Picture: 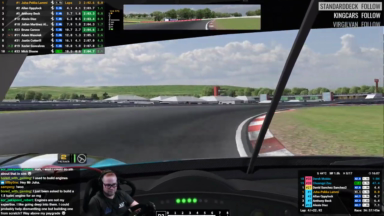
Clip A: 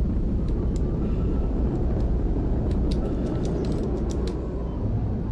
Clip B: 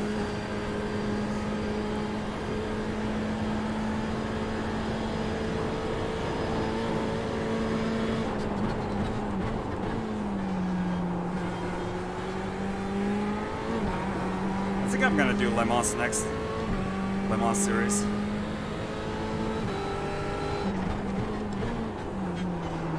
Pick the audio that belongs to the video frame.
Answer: B